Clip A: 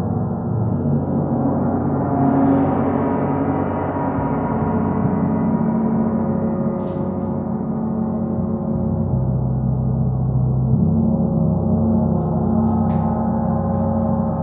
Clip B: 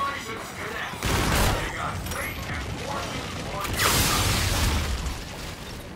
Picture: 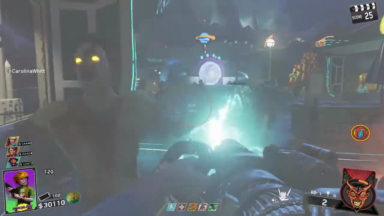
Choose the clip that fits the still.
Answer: B